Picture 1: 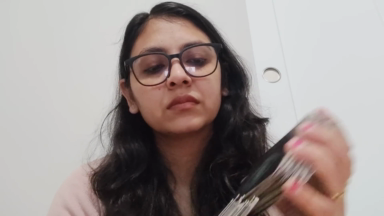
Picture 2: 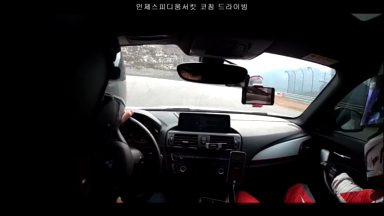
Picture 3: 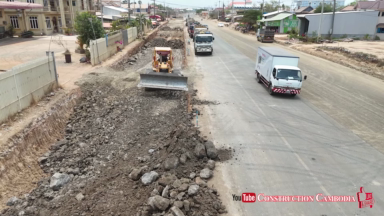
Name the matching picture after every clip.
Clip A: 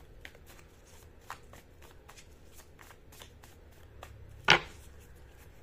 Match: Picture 1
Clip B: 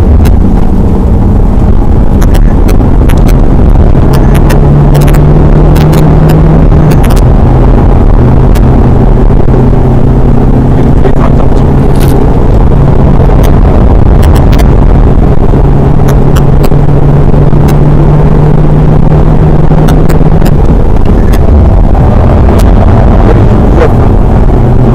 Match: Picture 2